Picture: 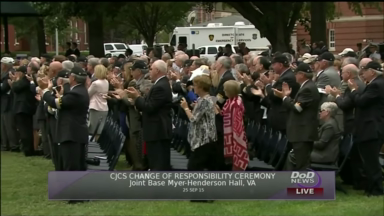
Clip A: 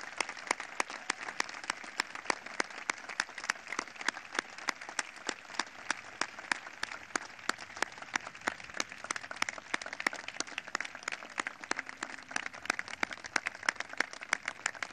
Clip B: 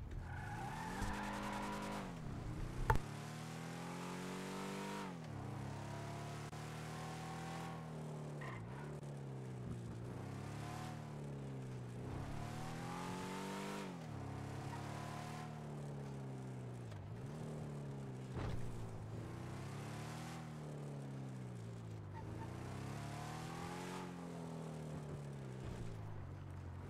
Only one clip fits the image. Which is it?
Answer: A